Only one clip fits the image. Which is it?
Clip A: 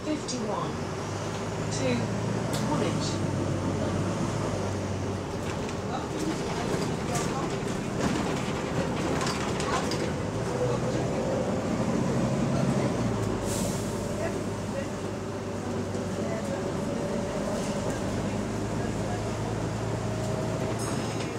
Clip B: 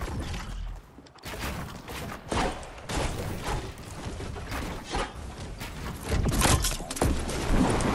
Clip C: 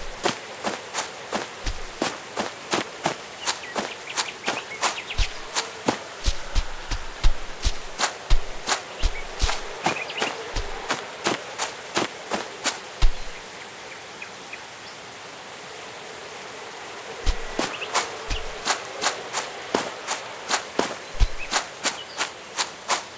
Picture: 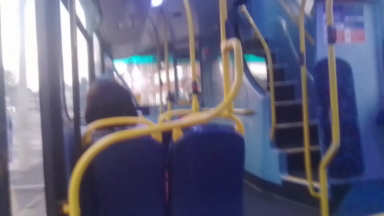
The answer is A